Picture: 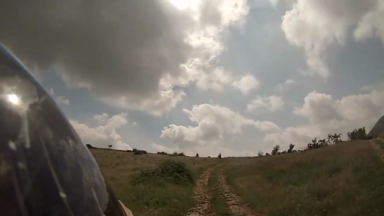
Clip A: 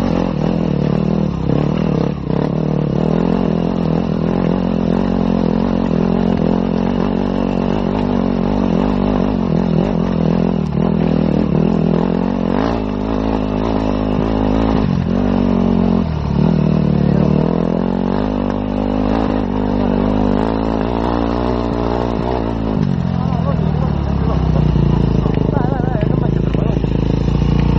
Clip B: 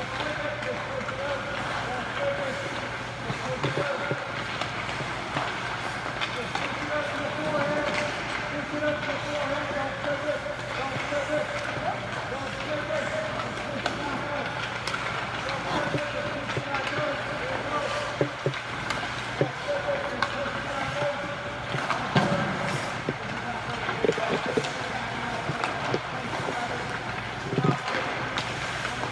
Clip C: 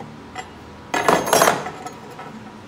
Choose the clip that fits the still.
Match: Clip A